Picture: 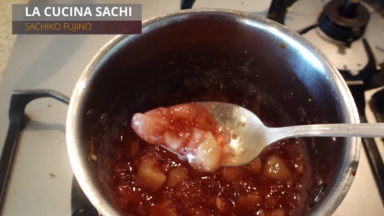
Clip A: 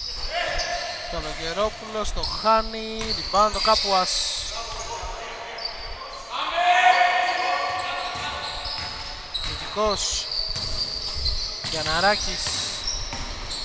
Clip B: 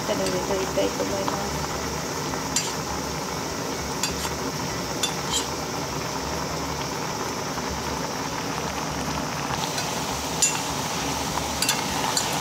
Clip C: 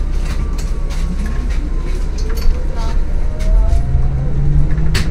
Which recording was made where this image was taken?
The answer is B